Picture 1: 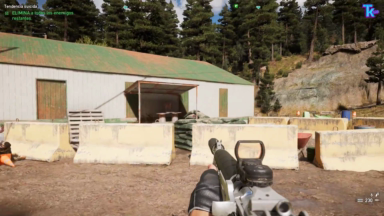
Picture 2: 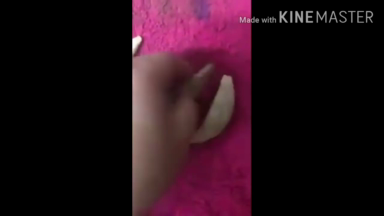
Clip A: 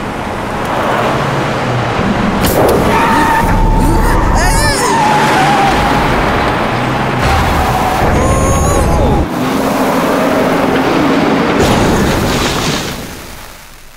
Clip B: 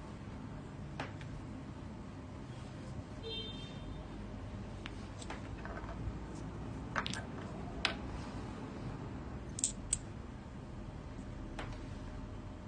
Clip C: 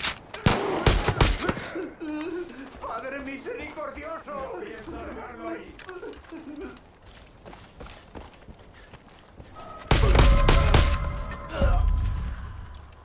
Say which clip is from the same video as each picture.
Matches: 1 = C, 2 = B